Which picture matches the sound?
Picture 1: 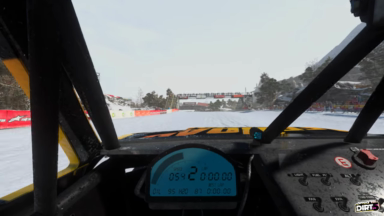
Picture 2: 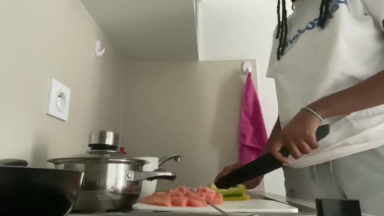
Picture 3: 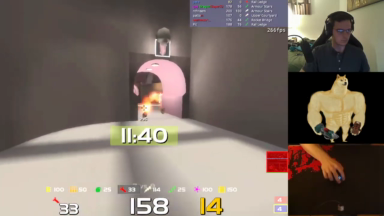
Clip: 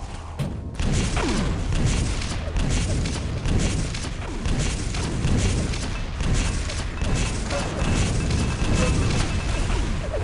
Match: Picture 3